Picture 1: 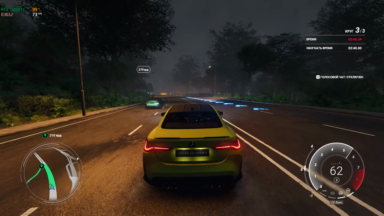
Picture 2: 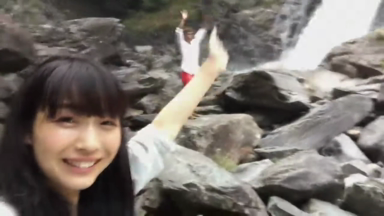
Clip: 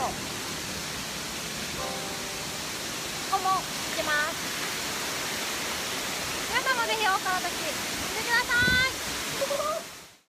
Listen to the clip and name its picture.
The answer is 2